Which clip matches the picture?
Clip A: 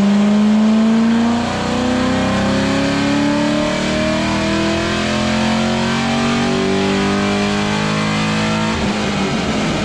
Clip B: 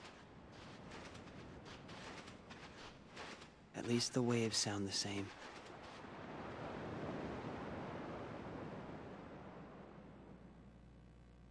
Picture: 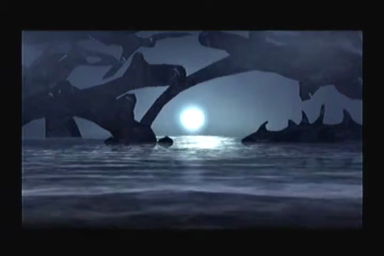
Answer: B